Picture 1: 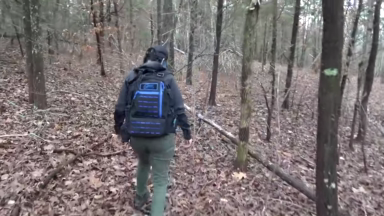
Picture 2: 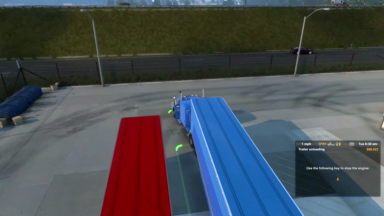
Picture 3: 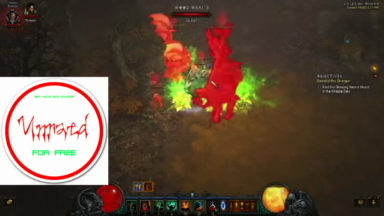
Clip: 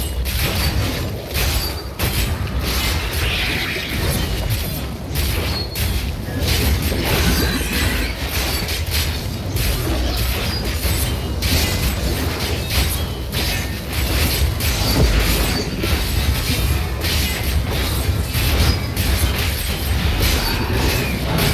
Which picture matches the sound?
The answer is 3